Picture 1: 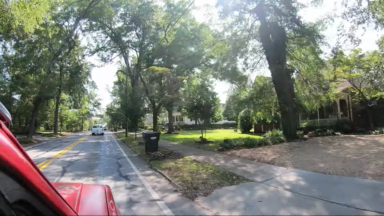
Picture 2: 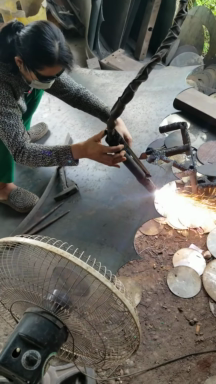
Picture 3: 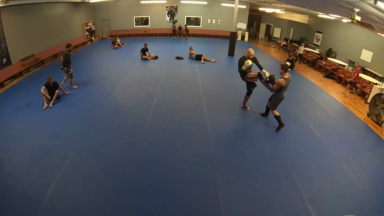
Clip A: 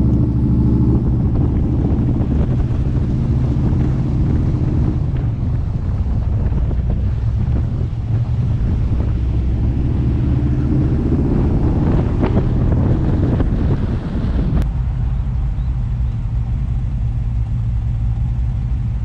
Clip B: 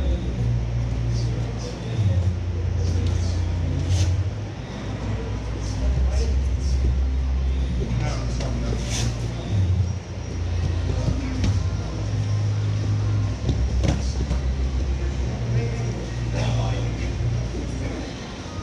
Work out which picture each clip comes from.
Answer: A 1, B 3